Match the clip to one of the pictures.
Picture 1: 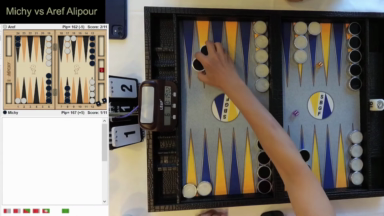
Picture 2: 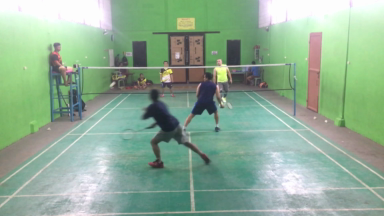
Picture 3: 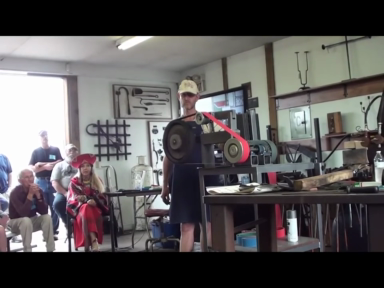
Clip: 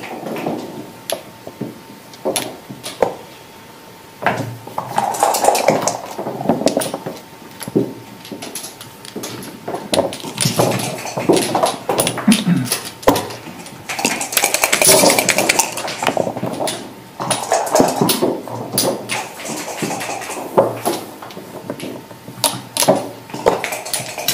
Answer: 1